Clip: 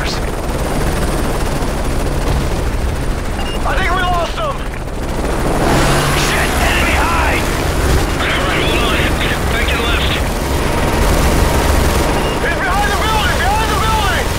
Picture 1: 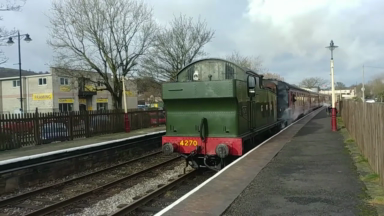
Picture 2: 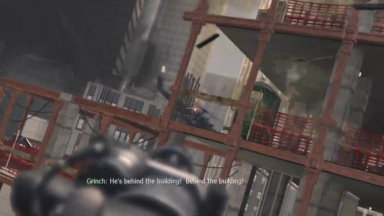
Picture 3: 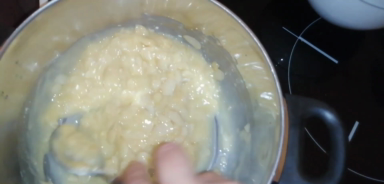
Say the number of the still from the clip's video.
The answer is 2